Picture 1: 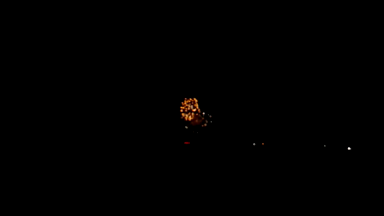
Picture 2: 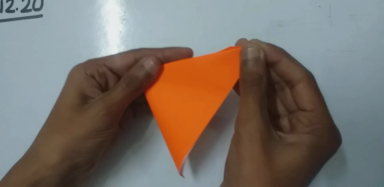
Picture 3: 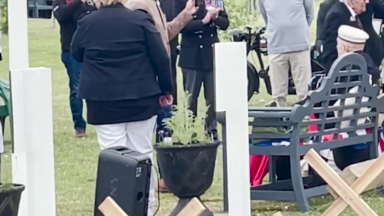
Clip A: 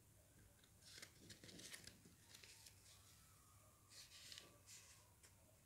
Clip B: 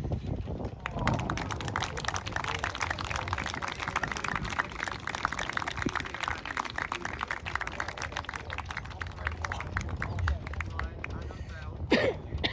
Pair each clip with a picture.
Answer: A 2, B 3